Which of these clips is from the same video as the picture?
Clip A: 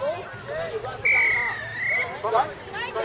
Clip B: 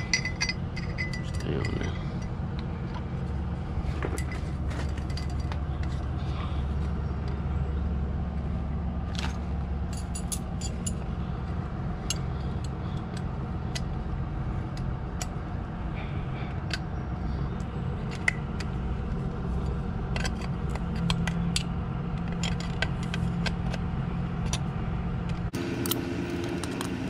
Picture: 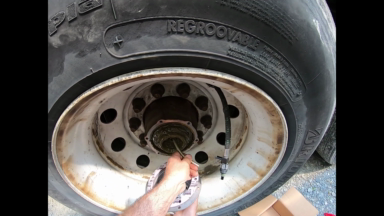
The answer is B